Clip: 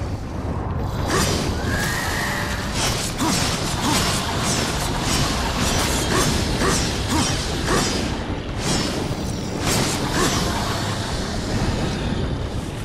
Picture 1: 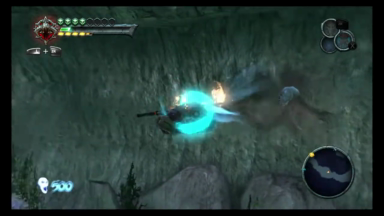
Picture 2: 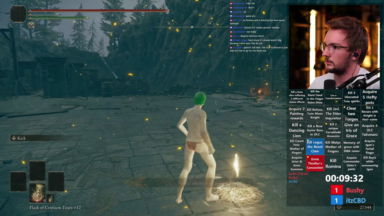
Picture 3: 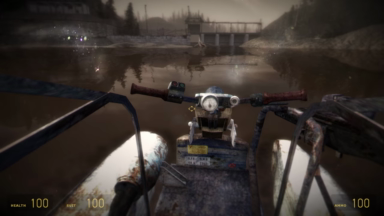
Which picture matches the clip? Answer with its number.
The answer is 1